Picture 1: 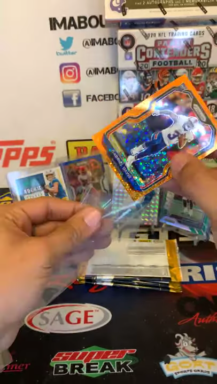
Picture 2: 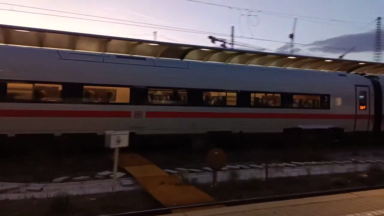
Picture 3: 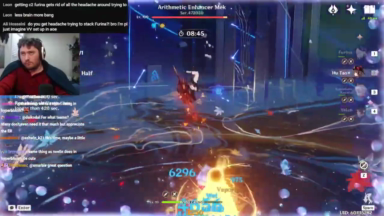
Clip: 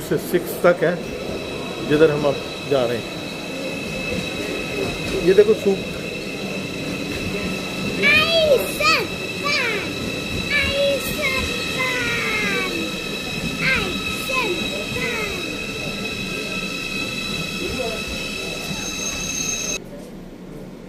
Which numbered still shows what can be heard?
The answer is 2